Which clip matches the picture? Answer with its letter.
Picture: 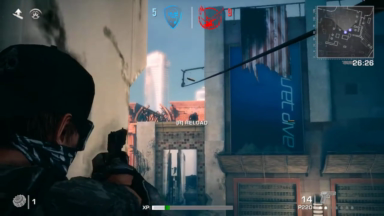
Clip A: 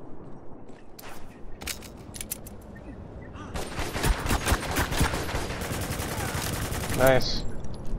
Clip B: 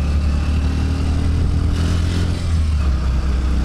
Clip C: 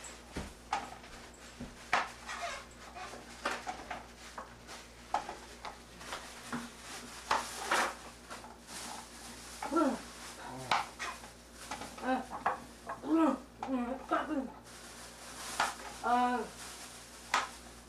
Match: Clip A